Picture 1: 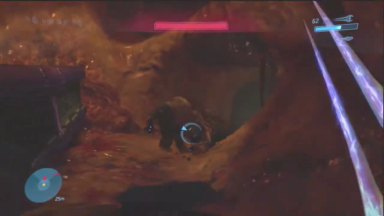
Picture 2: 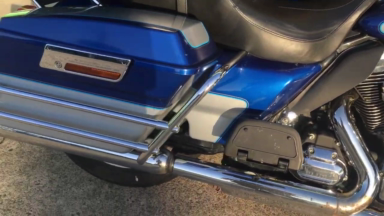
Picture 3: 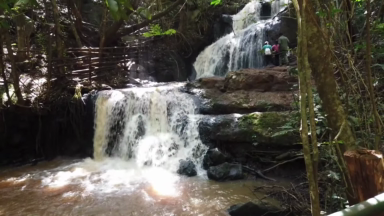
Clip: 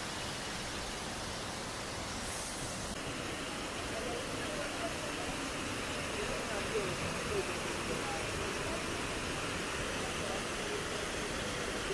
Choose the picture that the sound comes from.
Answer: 3